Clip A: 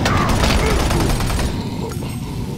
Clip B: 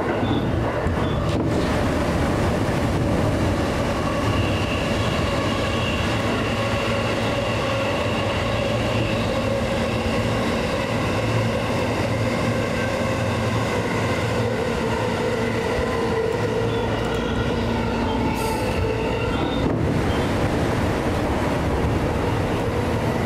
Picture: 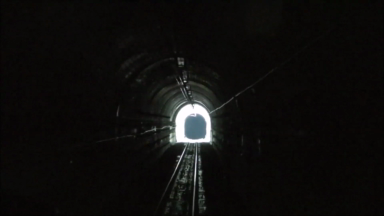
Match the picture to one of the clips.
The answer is B